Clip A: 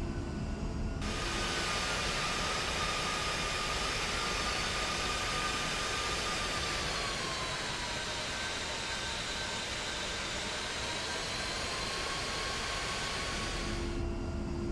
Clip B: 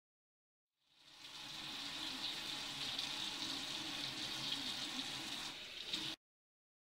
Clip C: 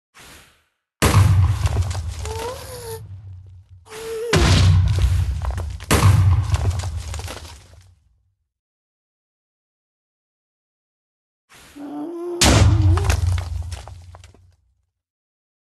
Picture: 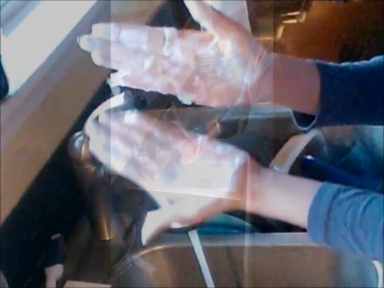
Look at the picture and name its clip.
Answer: B